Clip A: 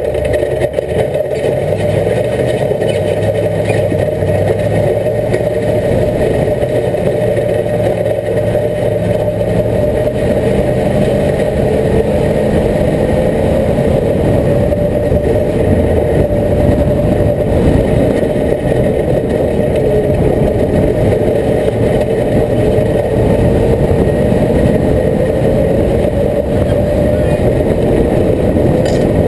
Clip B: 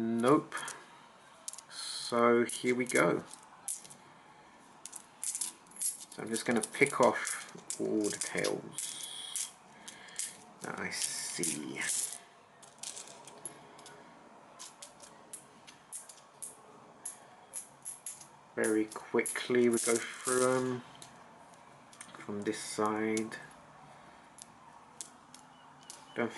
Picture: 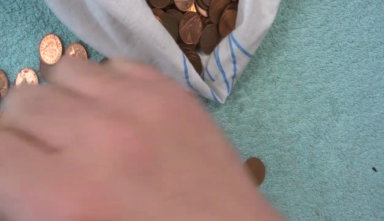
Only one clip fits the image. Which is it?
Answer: B